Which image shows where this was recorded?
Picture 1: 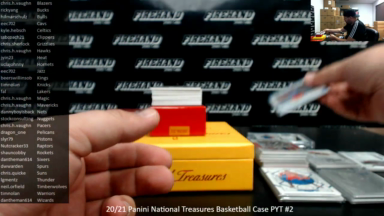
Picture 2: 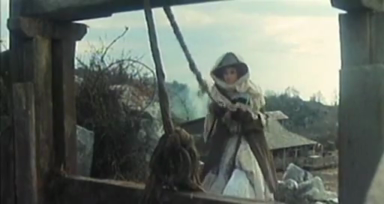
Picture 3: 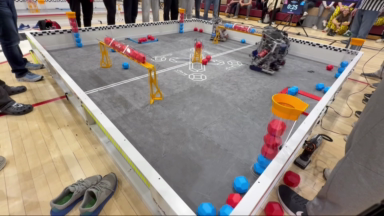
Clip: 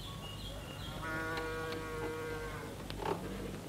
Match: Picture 2